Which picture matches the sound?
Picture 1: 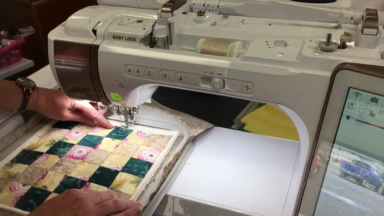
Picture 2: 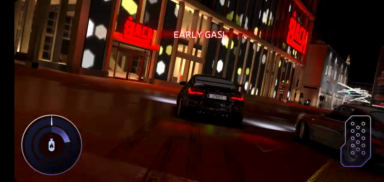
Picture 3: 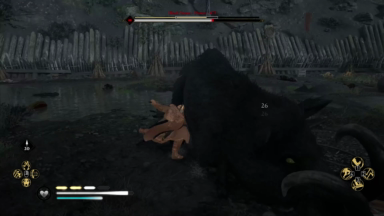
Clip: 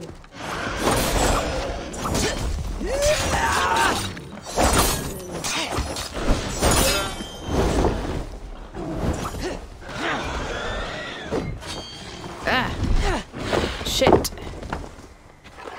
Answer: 3